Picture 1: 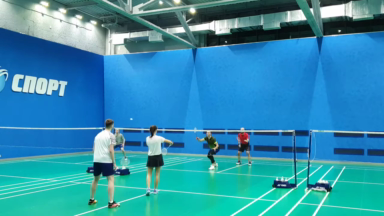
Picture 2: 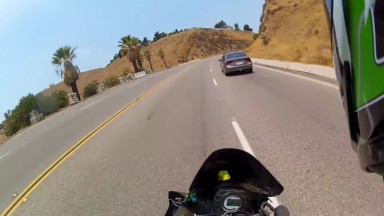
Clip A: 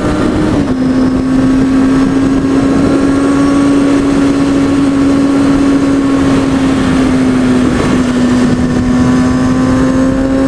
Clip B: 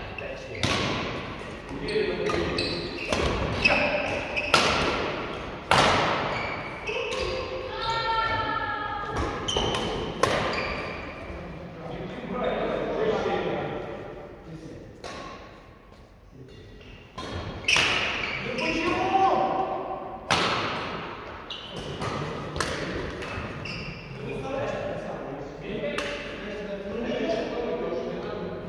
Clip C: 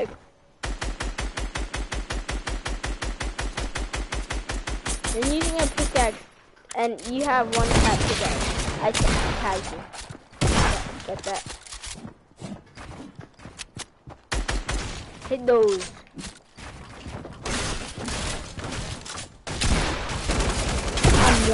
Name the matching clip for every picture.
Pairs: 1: B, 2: A